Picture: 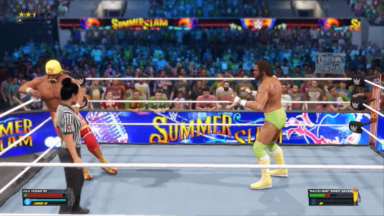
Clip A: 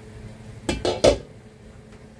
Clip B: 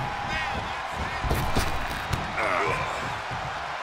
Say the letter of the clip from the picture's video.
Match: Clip B